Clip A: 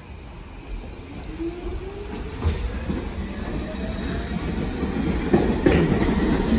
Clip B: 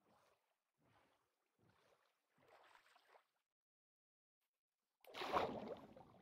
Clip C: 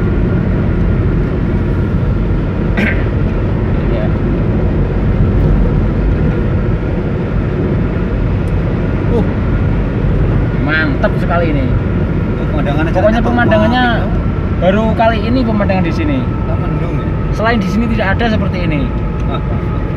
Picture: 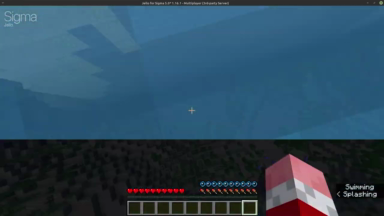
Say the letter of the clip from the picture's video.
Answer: B